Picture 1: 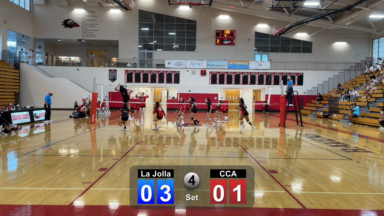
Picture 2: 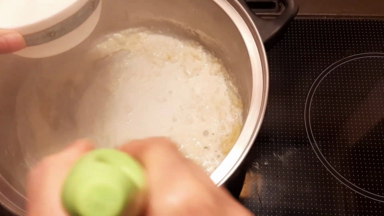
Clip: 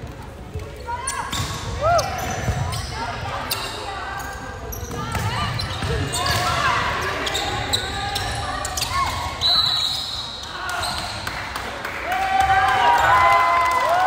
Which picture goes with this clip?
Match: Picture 1